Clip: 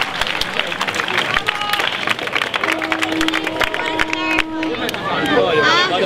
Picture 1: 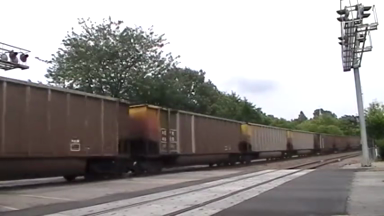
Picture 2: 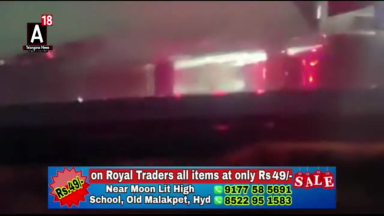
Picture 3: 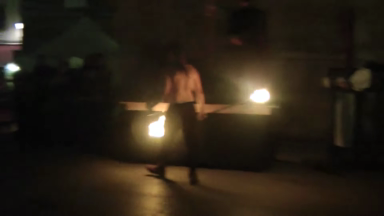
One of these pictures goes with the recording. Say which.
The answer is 3